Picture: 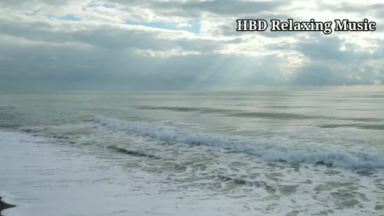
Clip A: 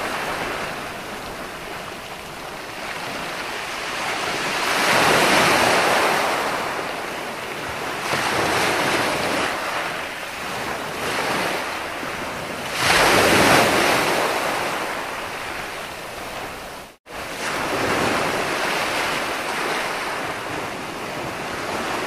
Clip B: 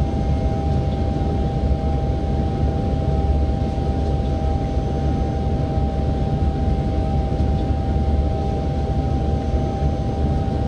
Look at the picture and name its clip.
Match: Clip A